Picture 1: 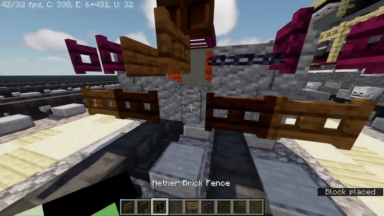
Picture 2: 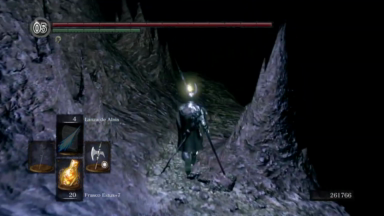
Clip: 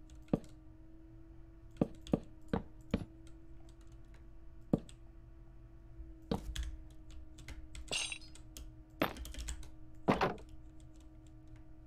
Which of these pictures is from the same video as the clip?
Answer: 1